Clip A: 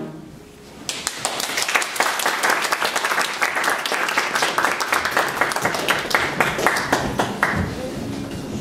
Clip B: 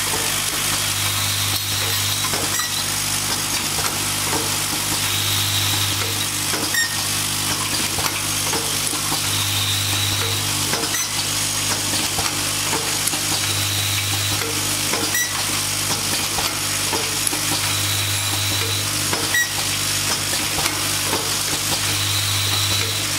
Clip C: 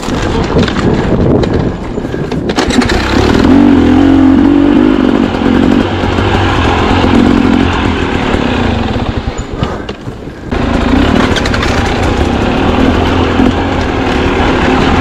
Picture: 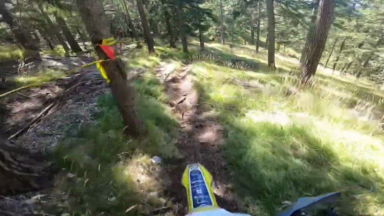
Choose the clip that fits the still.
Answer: C